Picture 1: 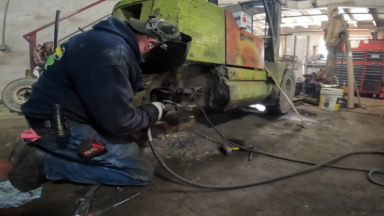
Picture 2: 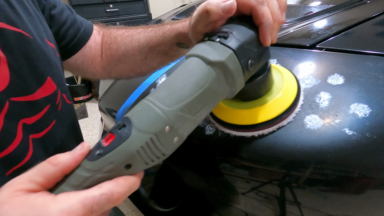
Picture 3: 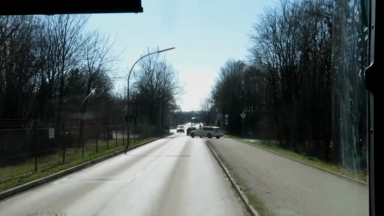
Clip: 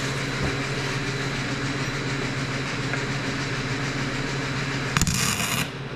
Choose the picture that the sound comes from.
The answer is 1